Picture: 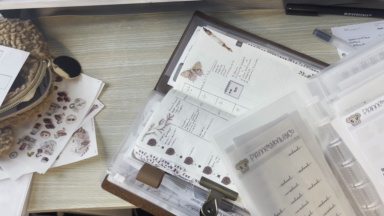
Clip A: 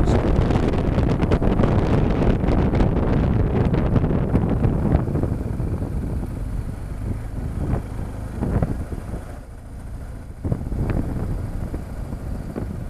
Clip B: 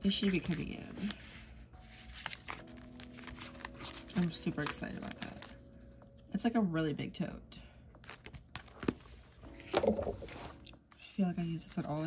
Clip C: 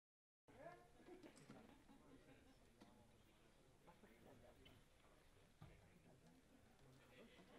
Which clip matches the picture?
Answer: B